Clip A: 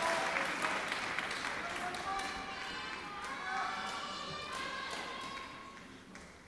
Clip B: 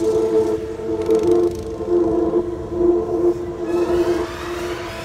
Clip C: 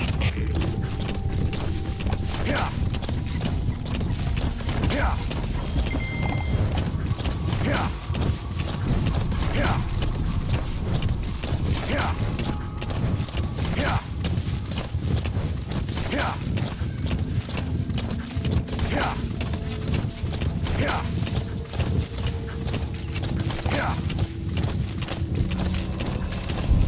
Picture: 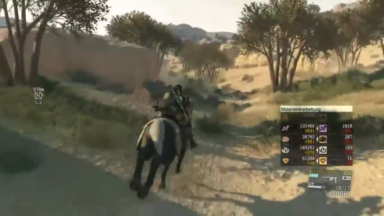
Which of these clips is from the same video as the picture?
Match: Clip C